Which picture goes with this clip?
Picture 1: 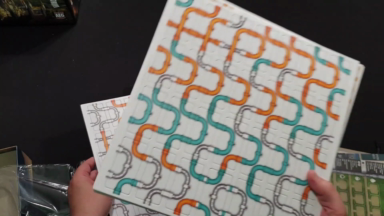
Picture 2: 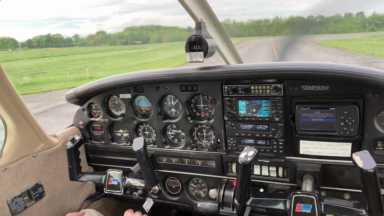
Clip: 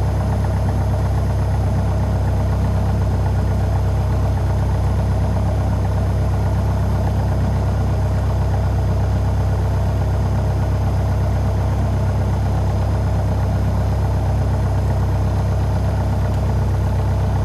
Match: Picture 2